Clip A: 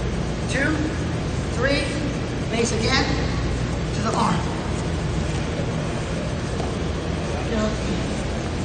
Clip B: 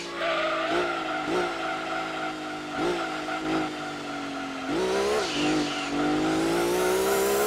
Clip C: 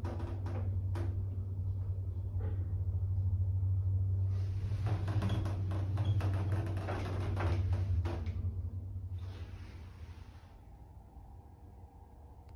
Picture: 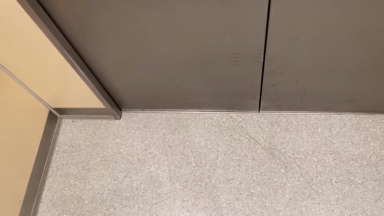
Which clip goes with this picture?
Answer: C